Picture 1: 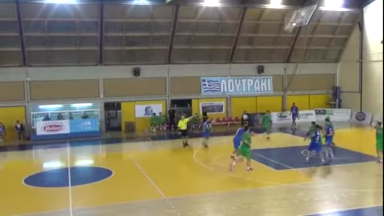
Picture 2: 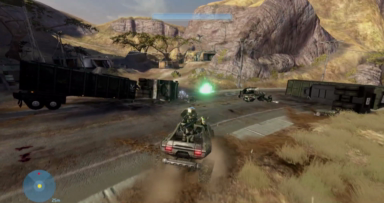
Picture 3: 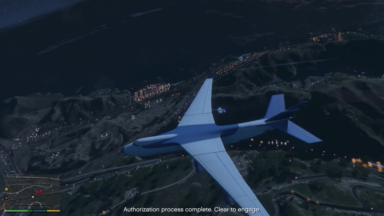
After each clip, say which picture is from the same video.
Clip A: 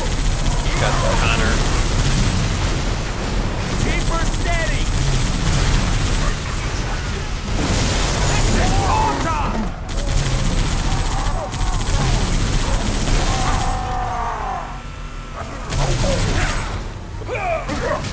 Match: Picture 2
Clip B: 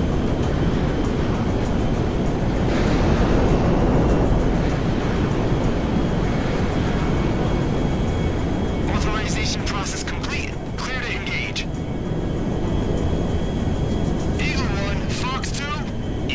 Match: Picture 3